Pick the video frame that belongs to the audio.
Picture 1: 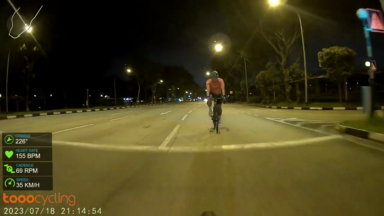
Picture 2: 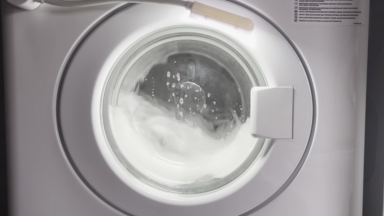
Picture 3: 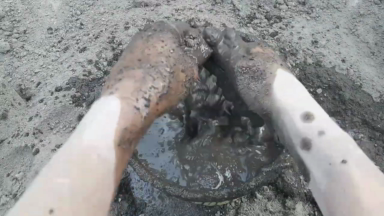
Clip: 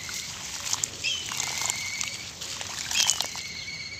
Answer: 3